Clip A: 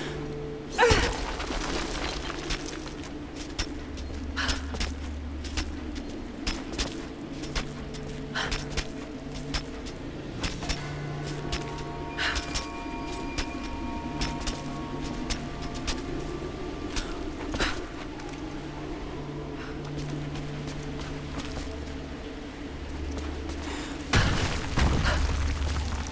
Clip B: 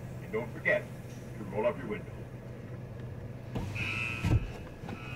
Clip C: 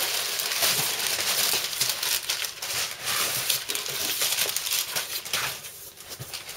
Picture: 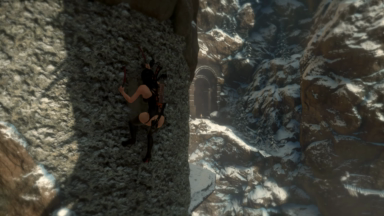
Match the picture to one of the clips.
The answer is A